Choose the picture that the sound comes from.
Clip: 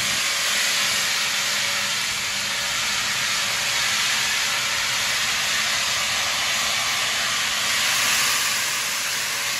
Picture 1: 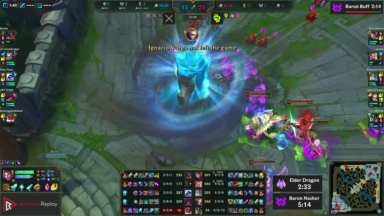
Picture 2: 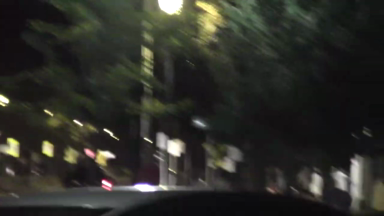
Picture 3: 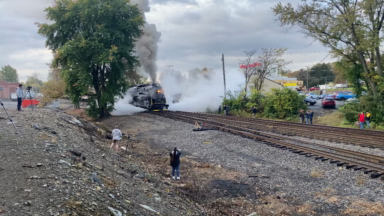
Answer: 3